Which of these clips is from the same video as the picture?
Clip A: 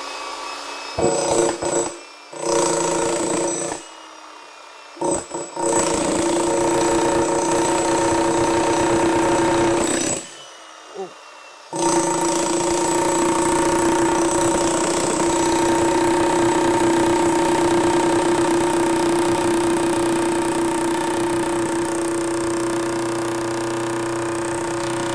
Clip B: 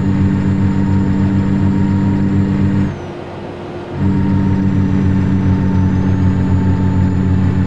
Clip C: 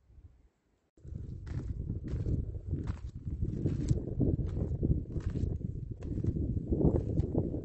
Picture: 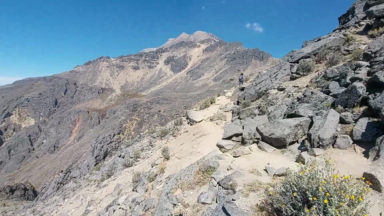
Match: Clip C